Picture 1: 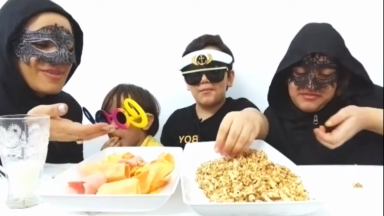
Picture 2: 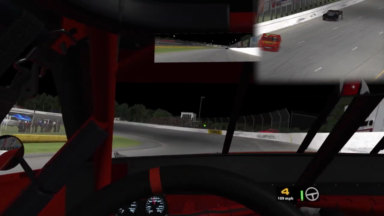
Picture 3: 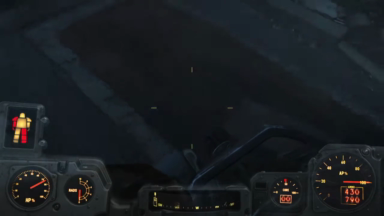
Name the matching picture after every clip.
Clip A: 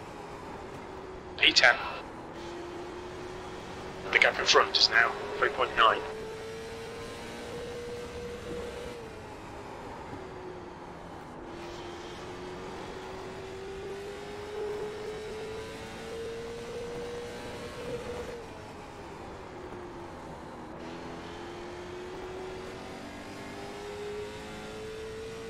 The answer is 2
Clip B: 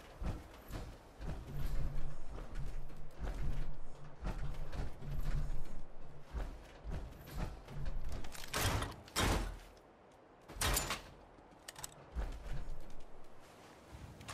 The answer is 3